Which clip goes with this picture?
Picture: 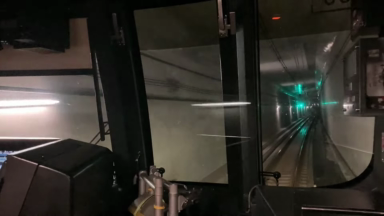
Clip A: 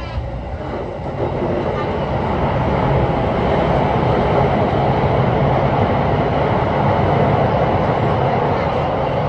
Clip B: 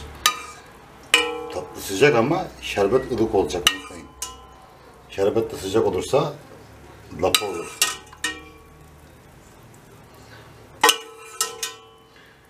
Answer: A